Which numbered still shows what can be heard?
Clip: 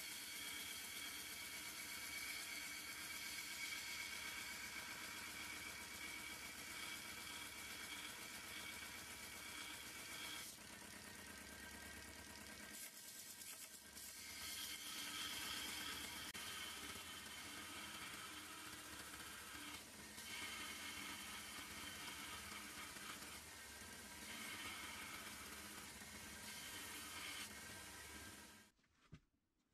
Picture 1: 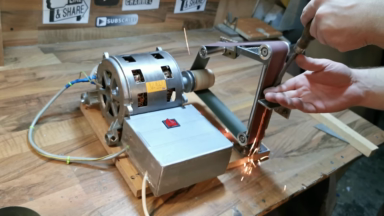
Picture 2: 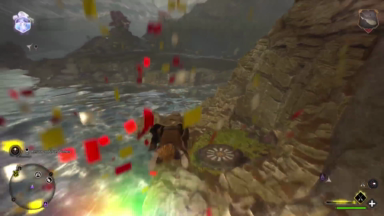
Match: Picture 1